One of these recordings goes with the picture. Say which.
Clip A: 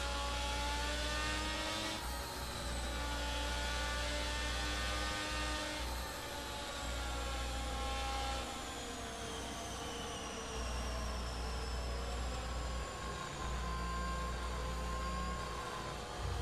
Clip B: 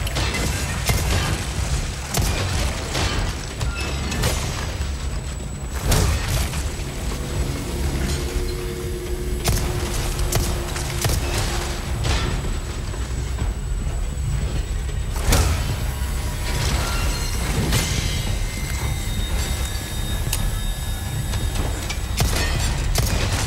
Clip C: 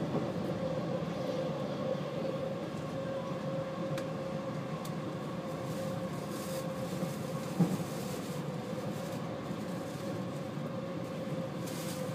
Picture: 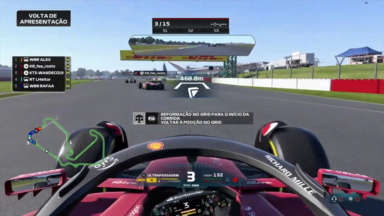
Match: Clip A